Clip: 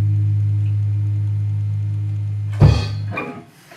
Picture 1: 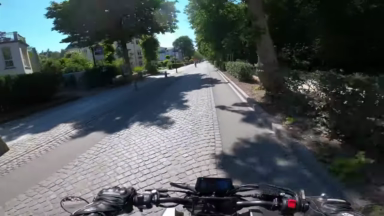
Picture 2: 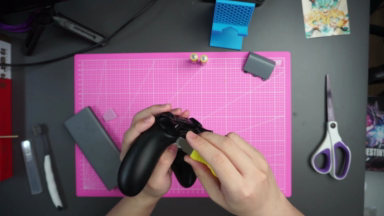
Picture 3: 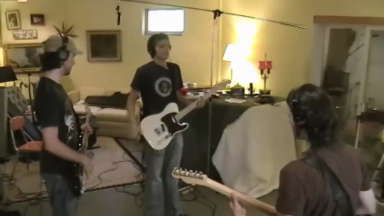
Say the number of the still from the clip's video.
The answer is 3